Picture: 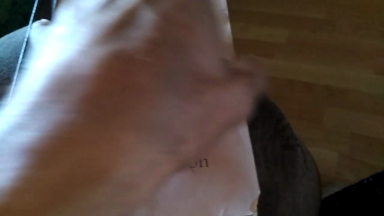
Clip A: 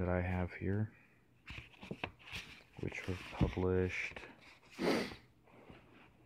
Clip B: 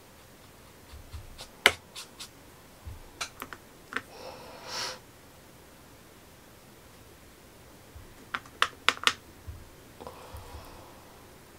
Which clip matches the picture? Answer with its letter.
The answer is A